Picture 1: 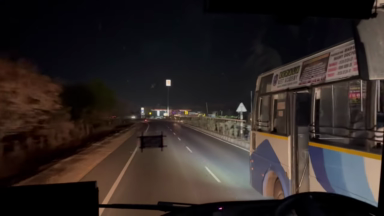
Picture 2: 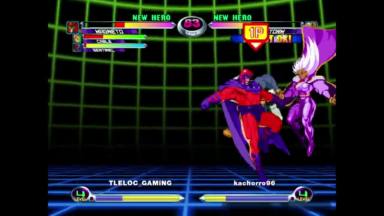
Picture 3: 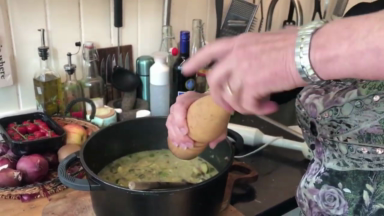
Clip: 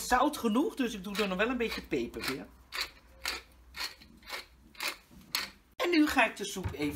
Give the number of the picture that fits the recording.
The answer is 3